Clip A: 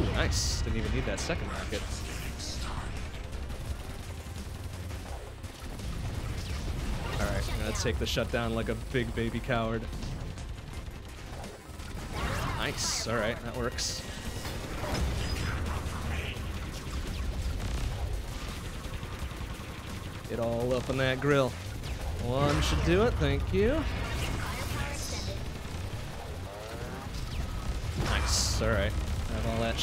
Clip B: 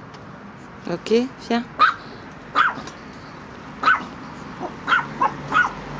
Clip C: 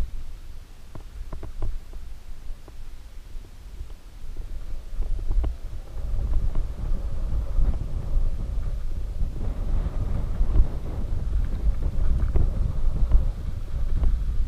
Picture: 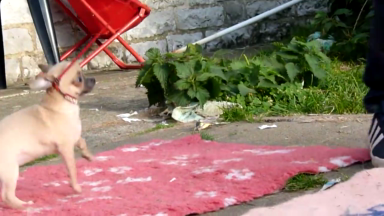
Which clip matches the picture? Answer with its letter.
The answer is B